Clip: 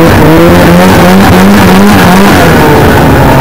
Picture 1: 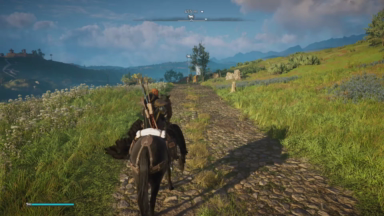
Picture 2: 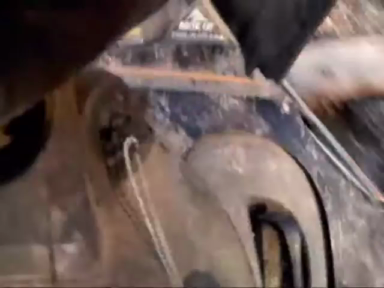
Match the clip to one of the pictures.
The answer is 2